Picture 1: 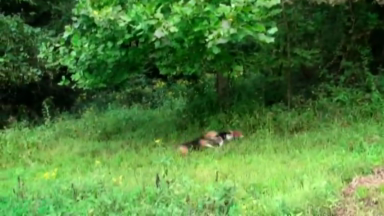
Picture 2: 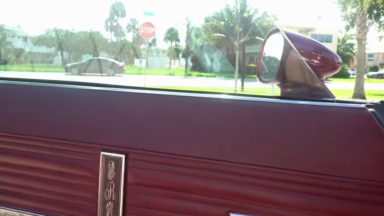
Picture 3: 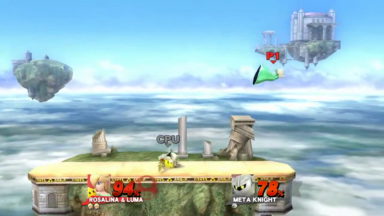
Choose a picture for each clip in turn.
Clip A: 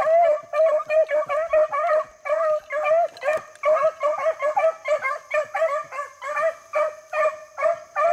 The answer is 1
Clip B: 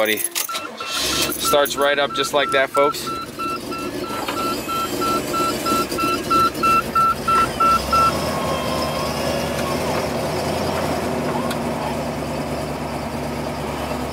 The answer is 2